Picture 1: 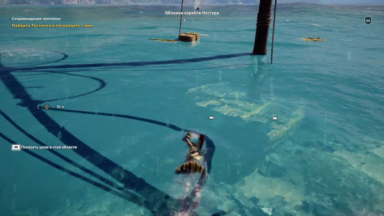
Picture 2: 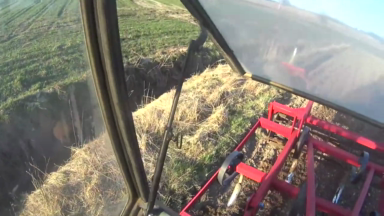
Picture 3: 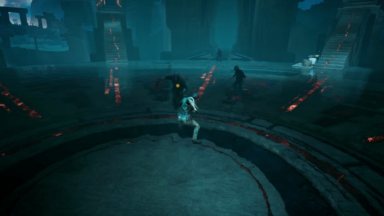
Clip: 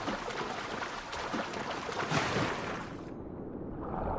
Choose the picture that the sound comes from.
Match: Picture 1